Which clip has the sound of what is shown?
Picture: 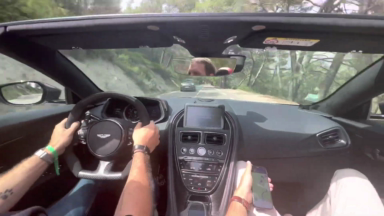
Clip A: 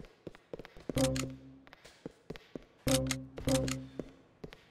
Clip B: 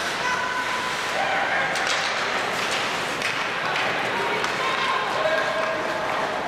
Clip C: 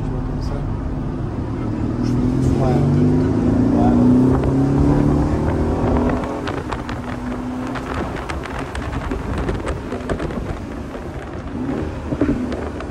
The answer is C